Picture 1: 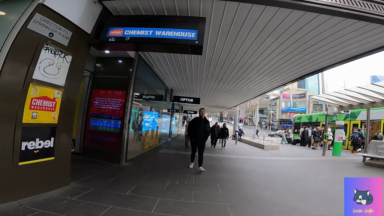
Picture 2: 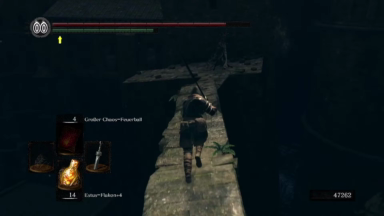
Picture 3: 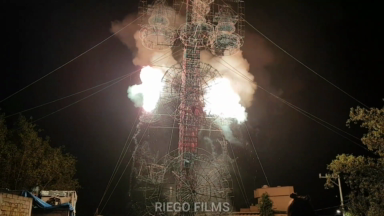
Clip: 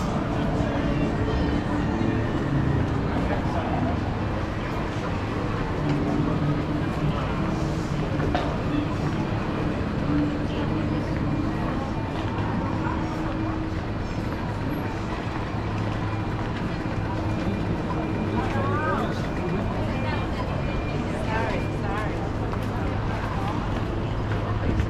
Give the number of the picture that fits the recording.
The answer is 1